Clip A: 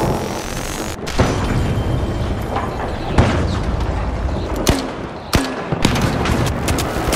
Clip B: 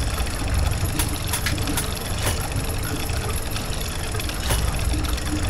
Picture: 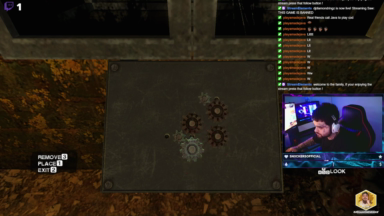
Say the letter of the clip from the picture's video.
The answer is B